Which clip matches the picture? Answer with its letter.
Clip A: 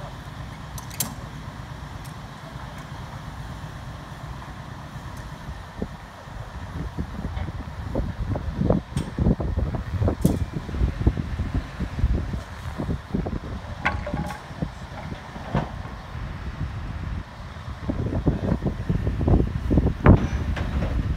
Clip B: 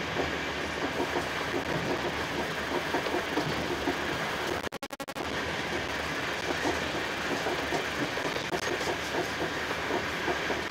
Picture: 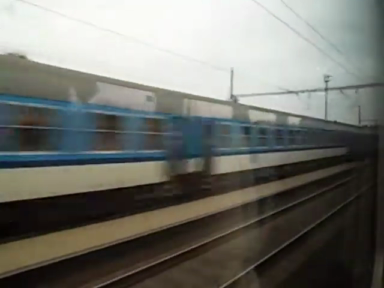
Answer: B